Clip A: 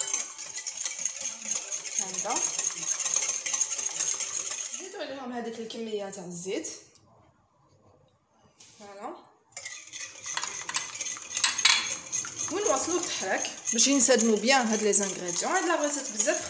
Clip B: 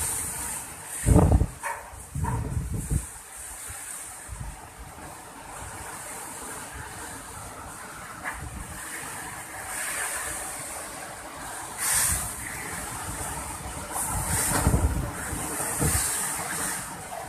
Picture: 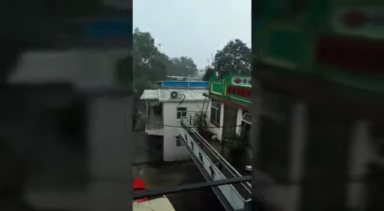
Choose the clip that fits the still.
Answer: B